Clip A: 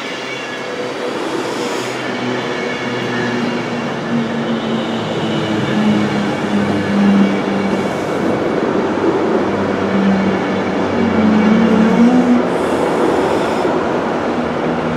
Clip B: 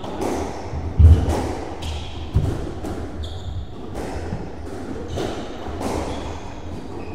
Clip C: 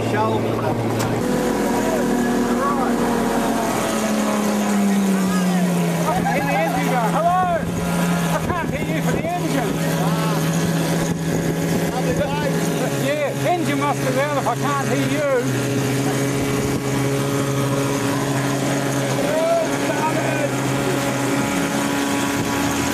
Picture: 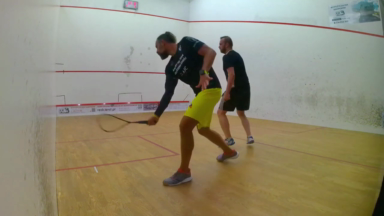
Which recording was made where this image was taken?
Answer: B